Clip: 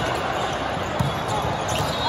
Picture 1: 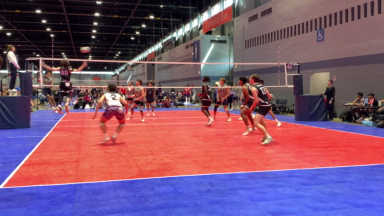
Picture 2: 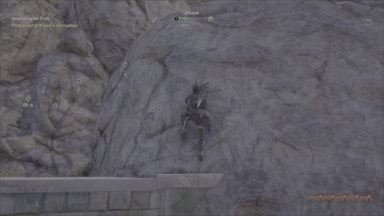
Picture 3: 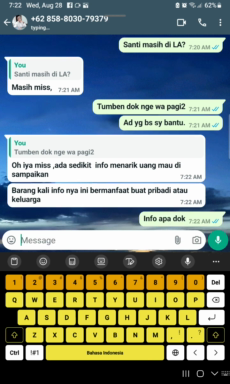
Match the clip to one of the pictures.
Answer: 1